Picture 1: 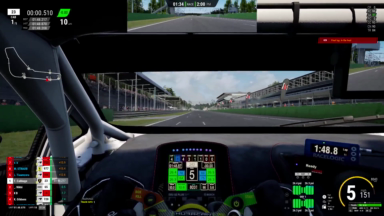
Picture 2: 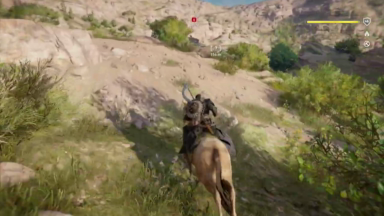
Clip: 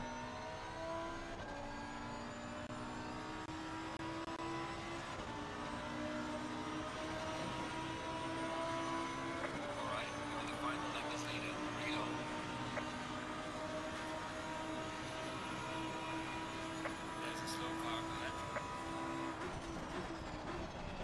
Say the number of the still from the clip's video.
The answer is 1